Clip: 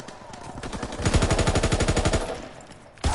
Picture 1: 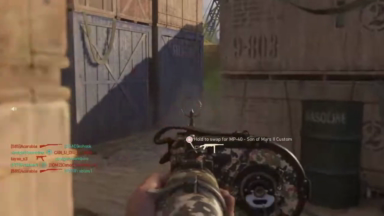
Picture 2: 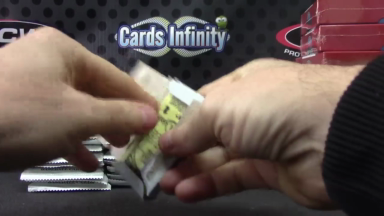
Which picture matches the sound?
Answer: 1